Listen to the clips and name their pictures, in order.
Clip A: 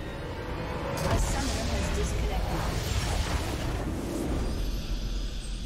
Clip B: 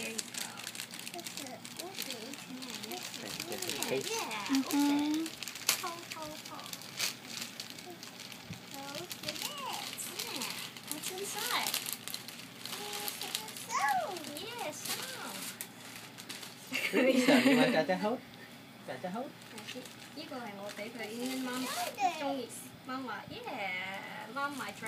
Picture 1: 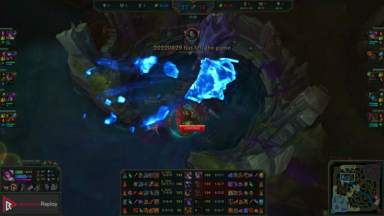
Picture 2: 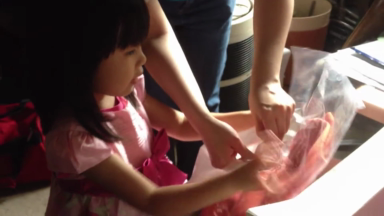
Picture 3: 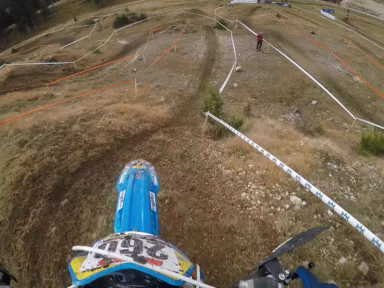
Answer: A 1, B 2